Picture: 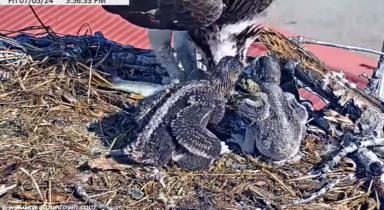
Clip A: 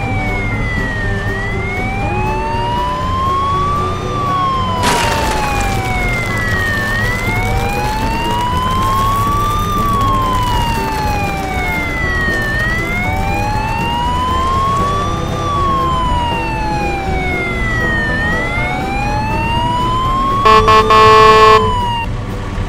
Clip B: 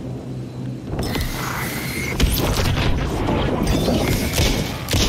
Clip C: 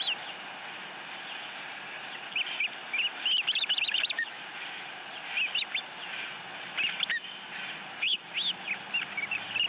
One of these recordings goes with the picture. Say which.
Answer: C